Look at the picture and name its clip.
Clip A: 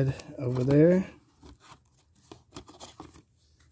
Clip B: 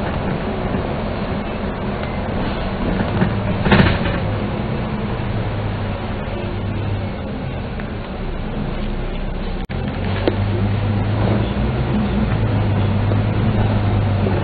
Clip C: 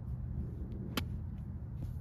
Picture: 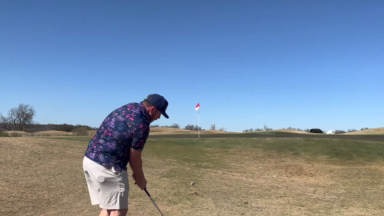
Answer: C